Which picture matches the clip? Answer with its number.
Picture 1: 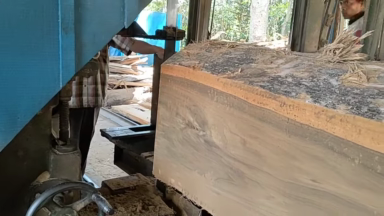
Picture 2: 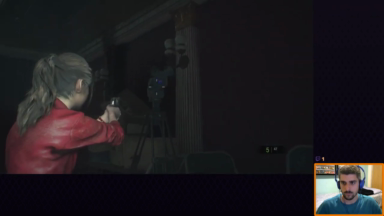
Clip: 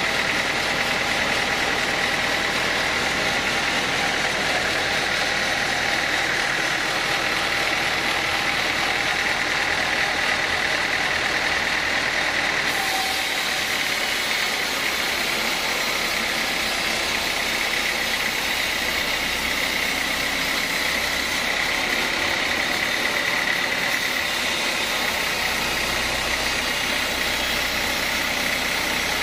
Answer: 1